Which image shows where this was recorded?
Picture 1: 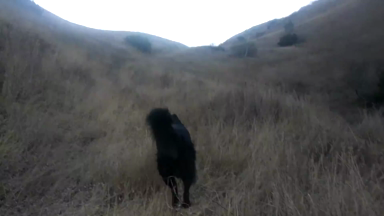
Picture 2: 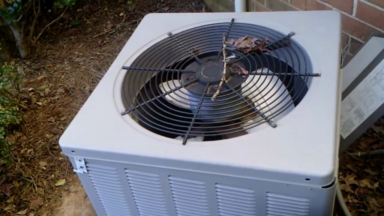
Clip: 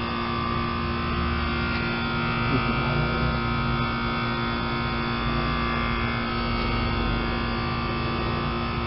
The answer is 2